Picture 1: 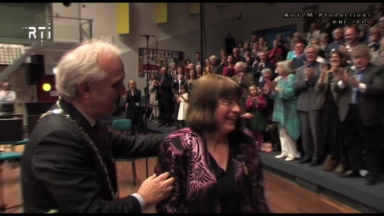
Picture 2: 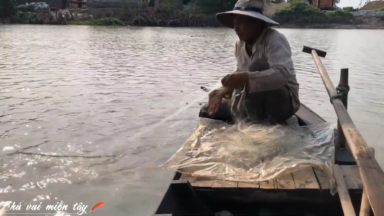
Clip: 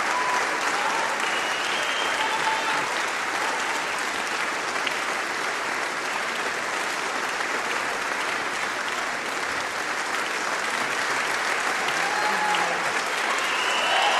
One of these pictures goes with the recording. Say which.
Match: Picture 1